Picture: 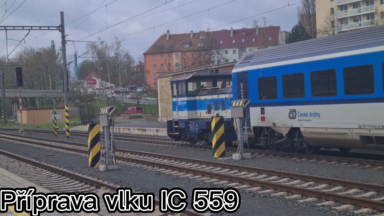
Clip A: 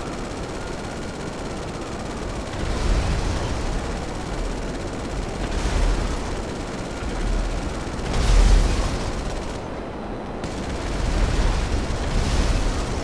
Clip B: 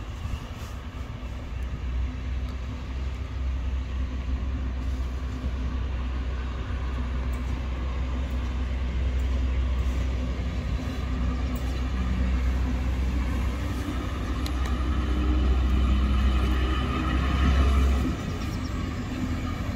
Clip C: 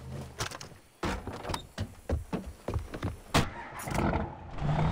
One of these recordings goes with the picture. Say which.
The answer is B